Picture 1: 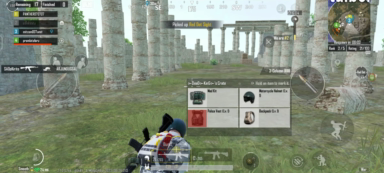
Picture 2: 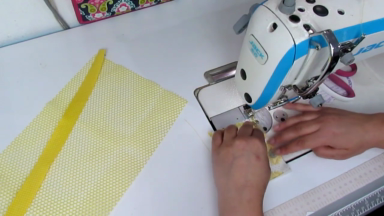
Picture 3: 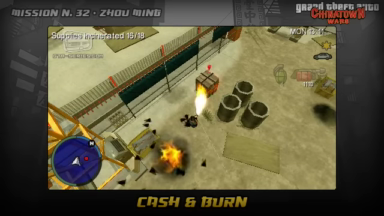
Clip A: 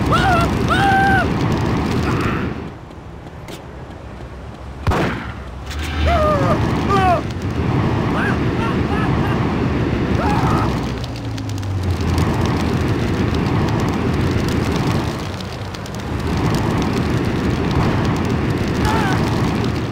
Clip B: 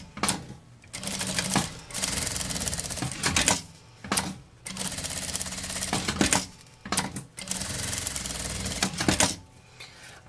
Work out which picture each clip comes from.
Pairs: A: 3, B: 2